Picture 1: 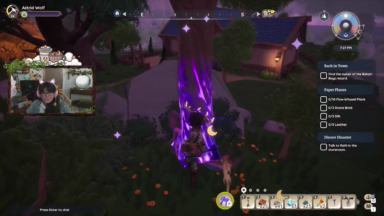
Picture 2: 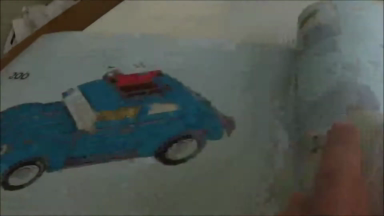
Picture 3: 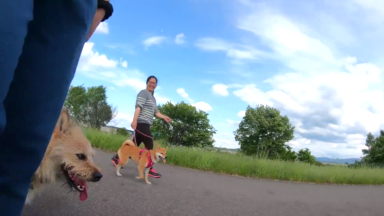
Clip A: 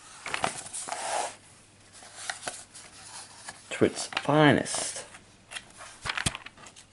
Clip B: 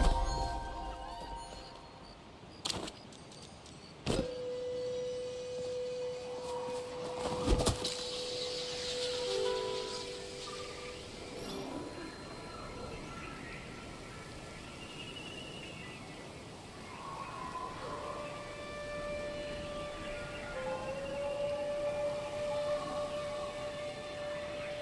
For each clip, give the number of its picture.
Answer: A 2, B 1